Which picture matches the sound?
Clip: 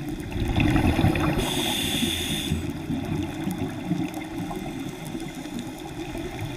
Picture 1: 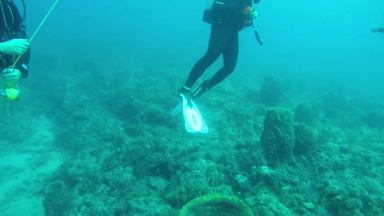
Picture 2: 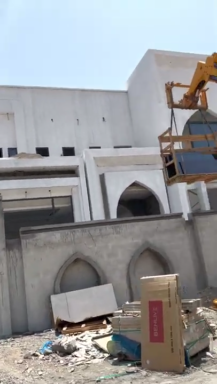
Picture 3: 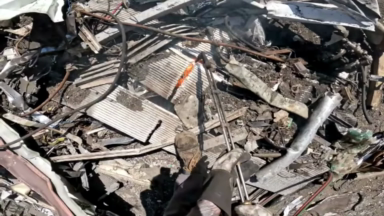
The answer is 1